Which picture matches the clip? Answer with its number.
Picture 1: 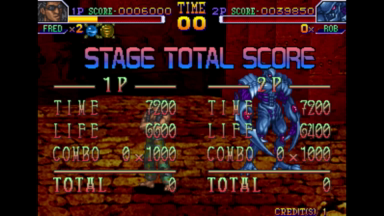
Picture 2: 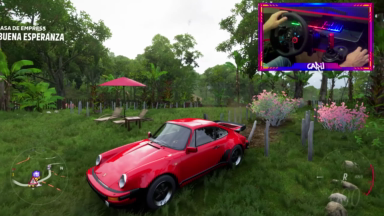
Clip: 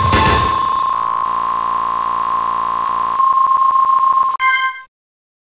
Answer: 1